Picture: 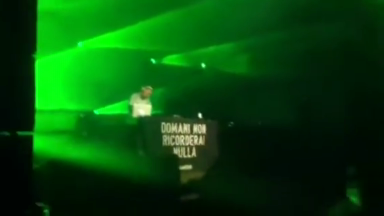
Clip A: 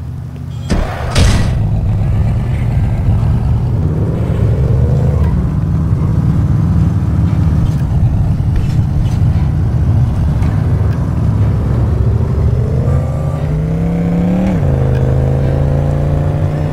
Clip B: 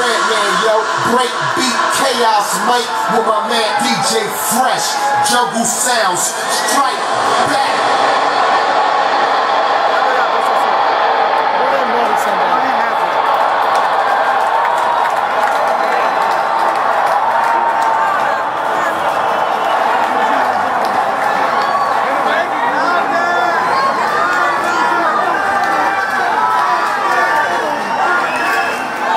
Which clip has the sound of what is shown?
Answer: B